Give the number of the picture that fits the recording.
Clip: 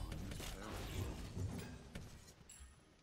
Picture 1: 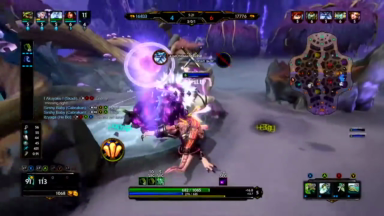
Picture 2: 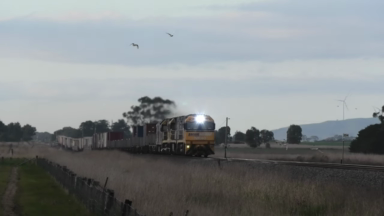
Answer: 1